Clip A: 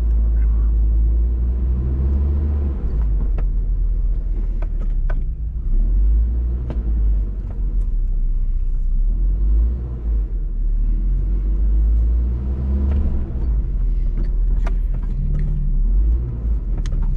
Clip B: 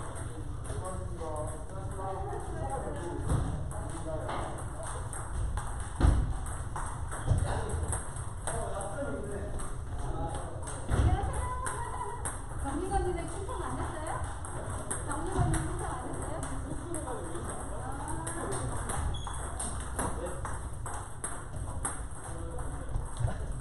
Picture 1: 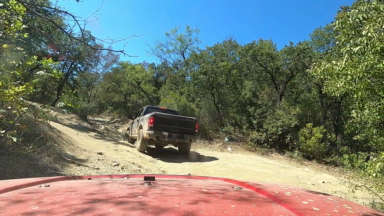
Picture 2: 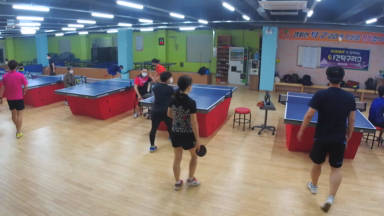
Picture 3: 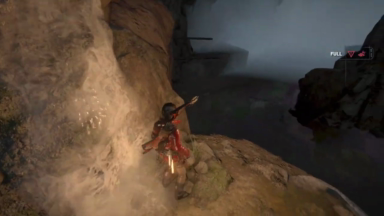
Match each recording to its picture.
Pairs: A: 1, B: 2